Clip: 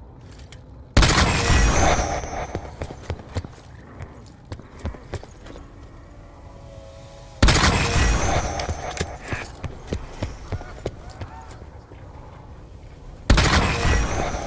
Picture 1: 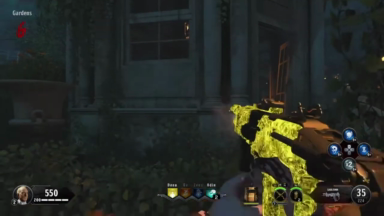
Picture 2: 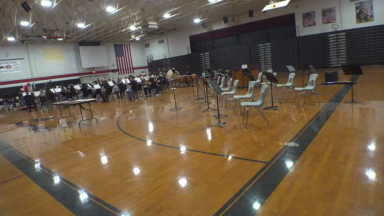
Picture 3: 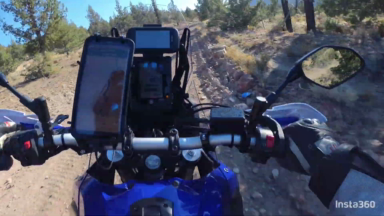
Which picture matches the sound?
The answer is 1